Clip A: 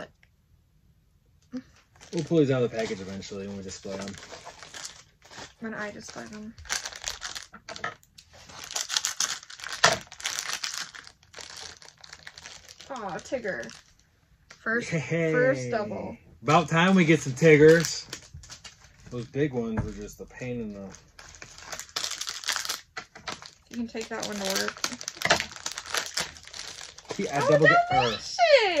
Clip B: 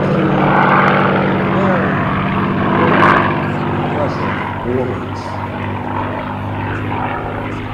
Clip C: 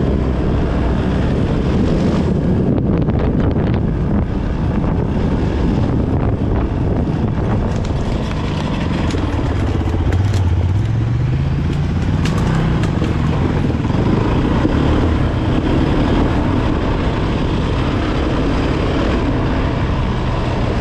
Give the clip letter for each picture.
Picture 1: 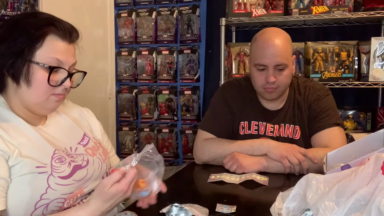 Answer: A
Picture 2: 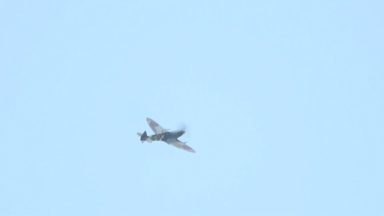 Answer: B